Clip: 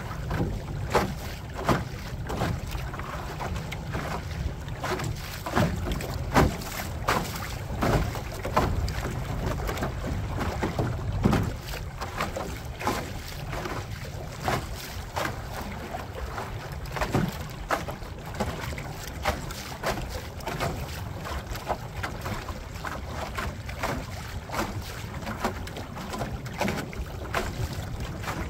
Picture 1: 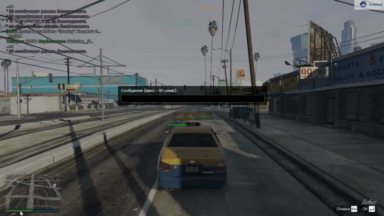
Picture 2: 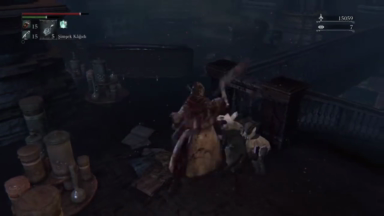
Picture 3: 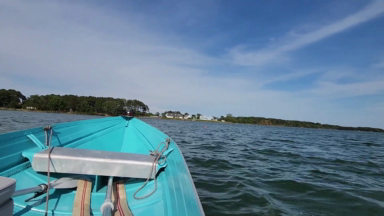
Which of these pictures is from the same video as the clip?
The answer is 3